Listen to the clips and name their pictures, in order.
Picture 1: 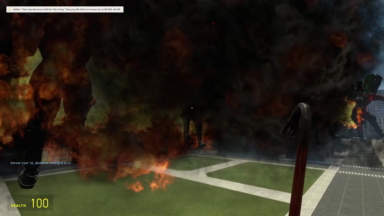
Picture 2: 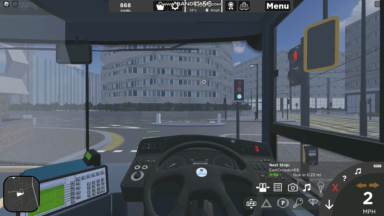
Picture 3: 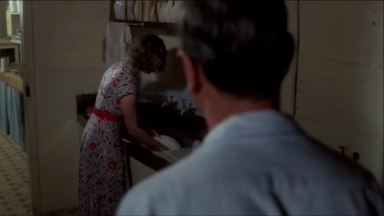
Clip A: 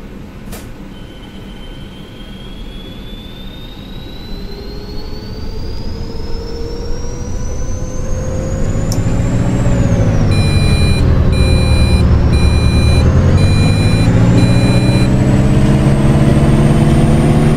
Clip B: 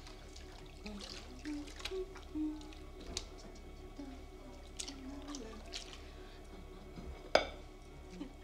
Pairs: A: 2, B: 3